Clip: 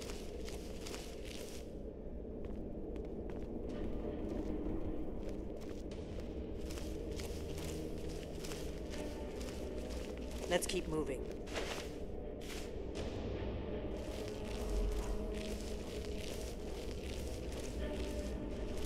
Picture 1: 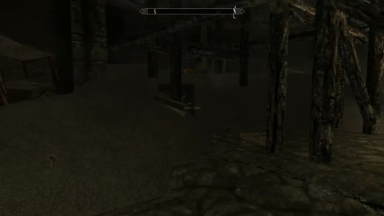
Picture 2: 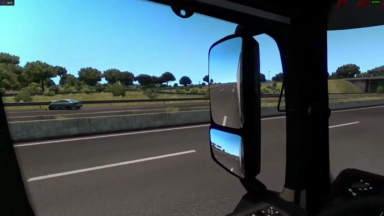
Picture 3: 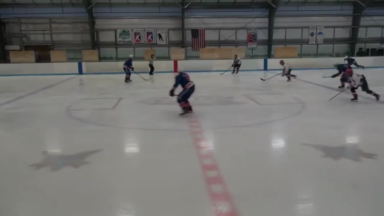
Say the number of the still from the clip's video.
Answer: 1